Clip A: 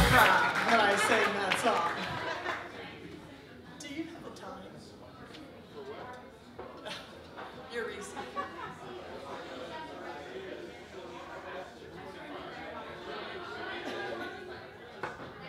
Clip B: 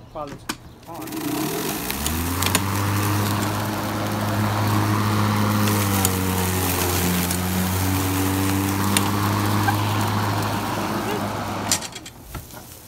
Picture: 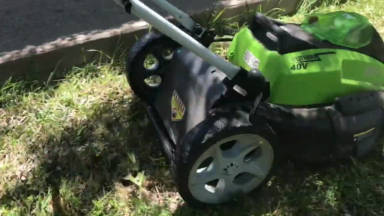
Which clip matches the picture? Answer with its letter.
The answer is B